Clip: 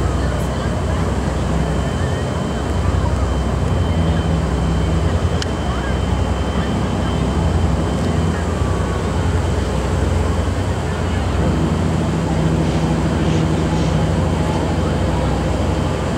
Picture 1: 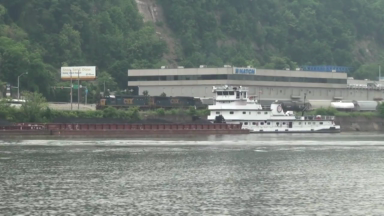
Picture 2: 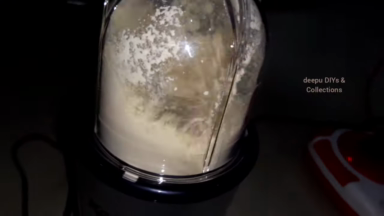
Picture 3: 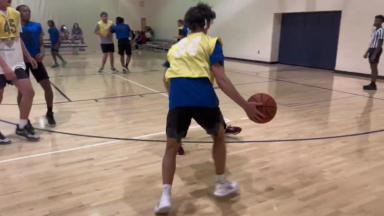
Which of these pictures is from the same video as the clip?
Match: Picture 1